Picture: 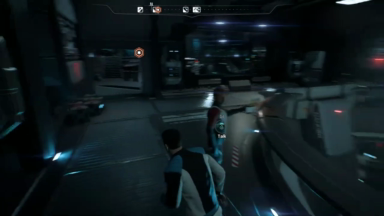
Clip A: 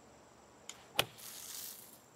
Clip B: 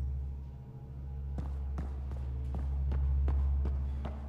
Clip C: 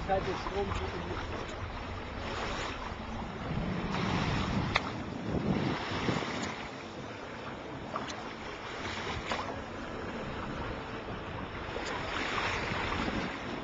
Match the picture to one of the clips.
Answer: B